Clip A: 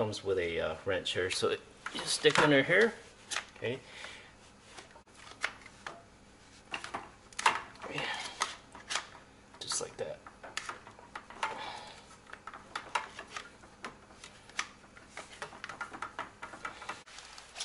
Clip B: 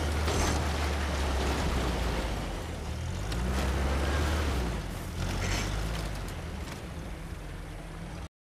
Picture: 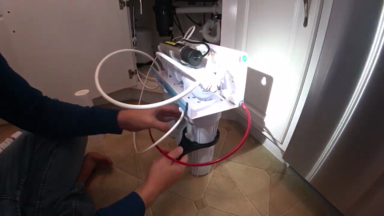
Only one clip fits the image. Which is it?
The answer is A